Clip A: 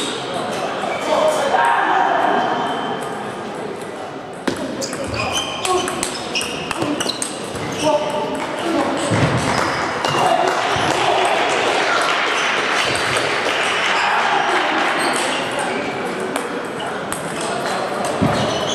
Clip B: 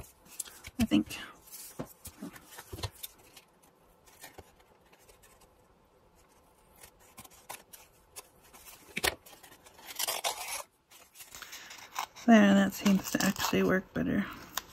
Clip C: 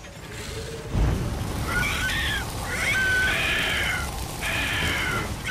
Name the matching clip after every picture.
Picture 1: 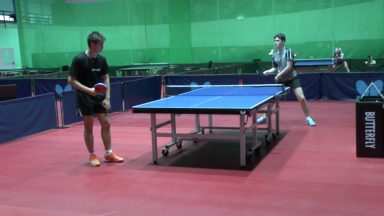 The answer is A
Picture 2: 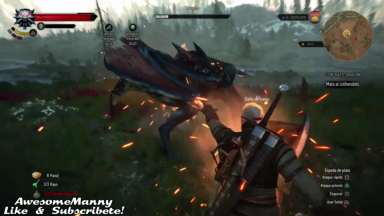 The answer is C